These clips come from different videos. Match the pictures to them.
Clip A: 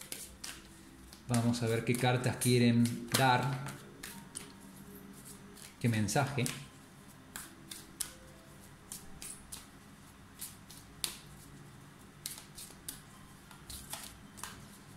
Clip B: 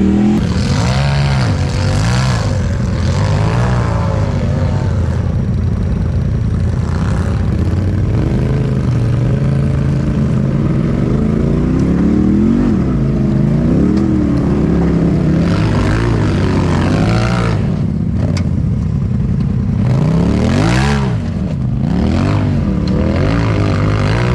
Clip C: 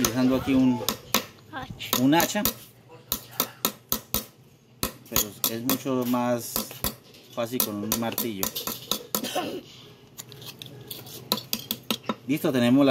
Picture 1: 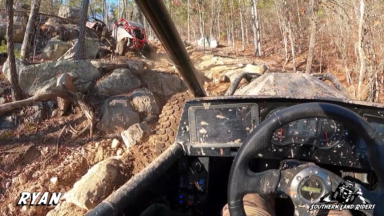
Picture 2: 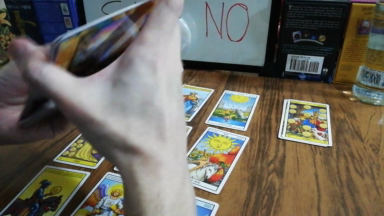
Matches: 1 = B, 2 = A